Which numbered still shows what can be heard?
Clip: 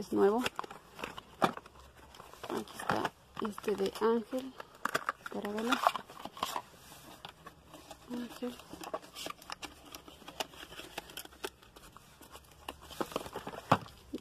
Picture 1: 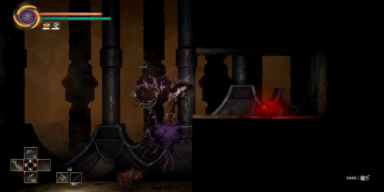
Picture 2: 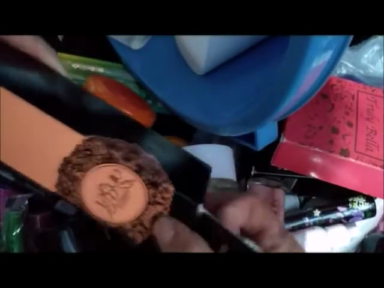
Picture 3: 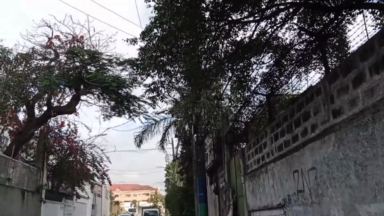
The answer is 2